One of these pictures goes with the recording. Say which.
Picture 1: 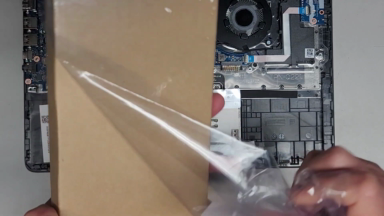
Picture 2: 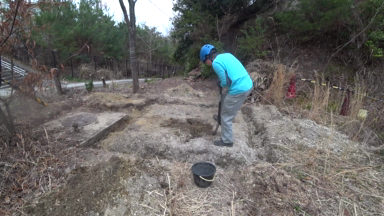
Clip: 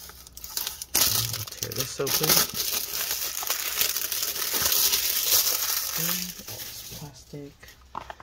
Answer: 1